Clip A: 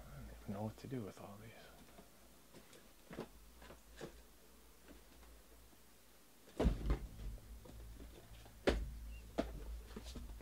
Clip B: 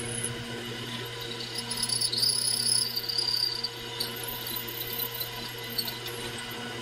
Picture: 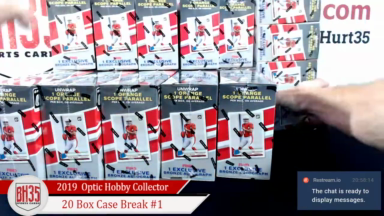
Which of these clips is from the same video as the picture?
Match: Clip A